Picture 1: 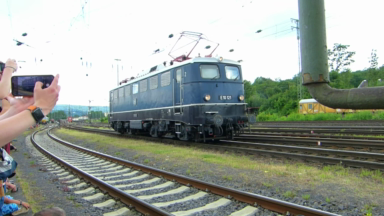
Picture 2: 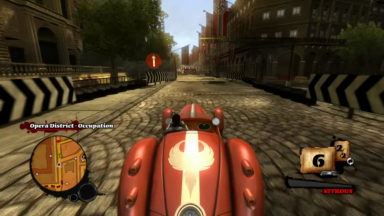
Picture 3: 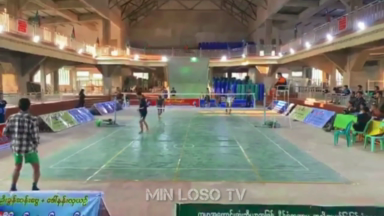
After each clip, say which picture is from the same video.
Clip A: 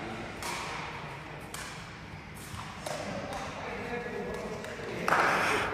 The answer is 3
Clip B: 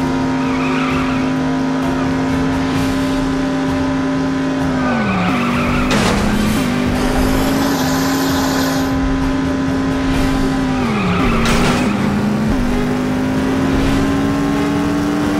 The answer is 2